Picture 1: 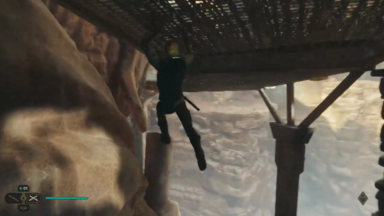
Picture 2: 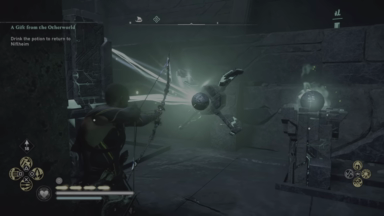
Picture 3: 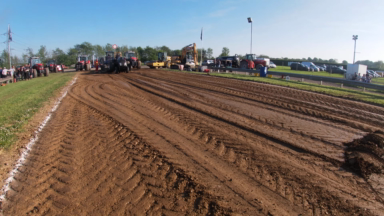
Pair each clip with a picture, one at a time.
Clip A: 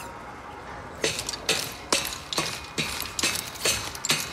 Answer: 1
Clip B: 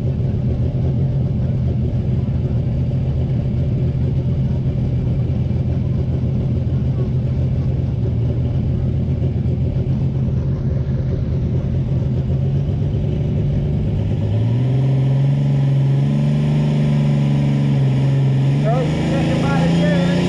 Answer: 3